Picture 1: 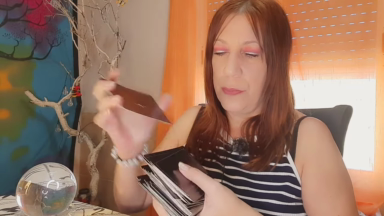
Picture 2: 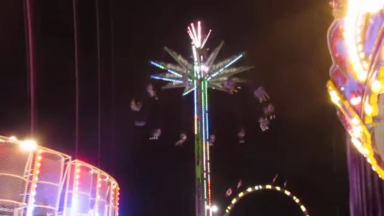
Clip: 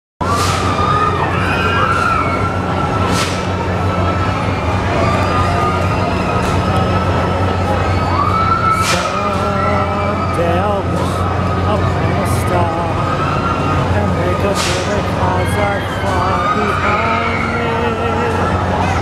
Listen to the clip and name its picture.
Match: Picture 2